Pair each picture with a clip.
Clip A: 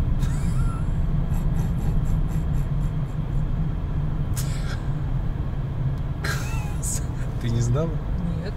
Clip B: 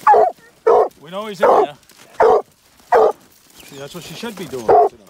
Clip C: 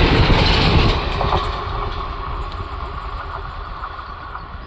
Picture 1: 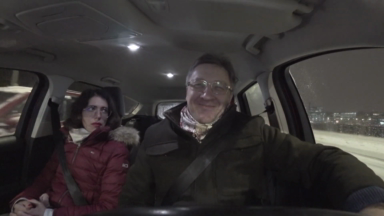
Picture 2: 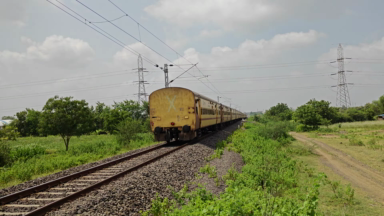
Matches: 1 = A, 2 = C